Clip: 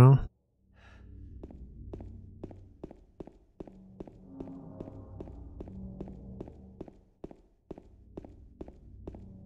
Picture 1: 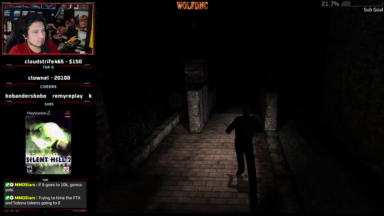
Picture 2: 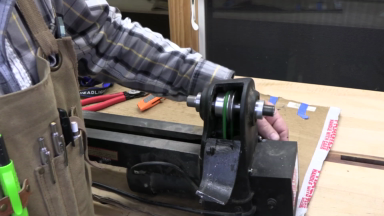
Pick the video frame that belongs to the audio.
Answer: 1